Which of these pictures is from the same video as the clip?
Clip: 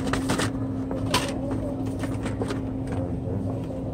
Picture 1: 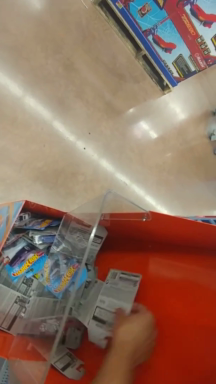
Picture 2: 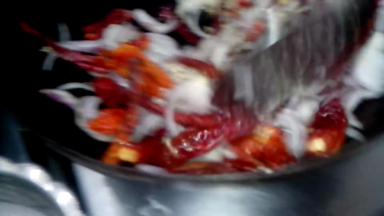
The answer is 1